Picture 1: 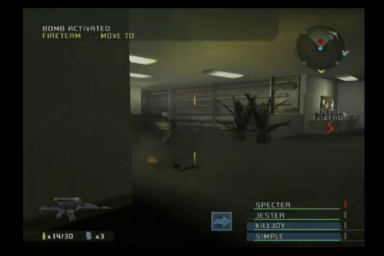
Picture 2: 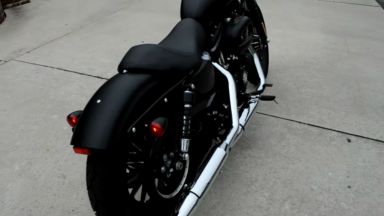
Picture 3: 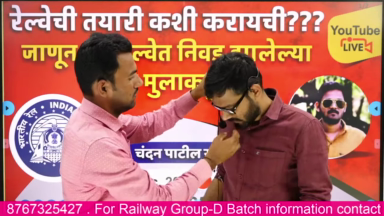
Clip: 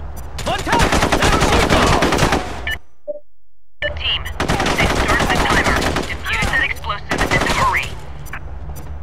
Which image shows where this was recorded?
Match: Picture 1